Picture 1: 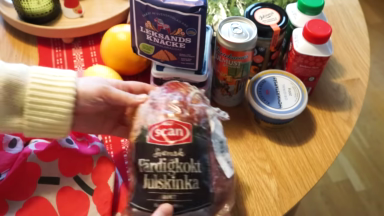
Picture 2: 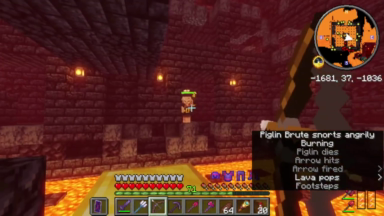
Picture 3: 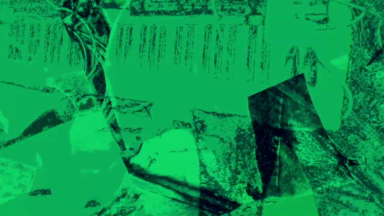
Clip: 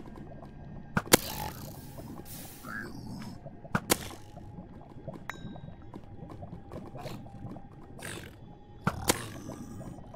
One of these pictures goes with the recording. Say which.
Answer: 2